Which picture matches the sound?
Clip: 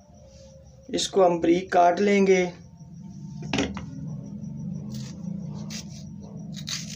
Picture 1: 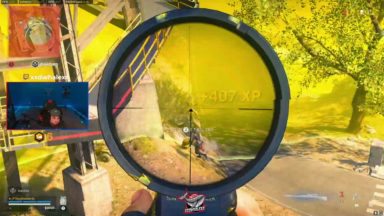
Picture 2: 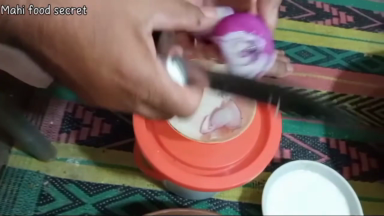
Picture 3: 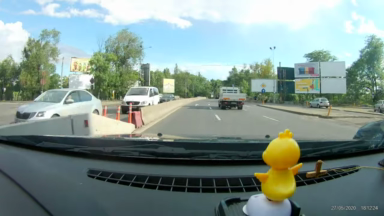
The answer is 2